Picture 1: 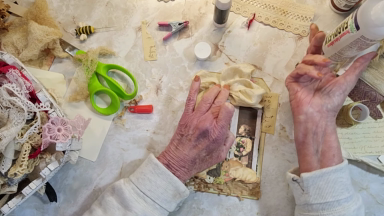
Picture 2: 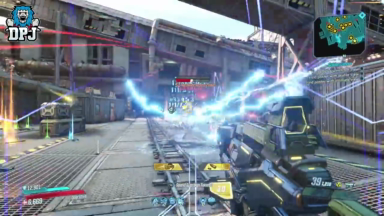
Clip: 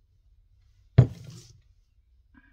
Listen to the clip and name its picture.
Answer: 1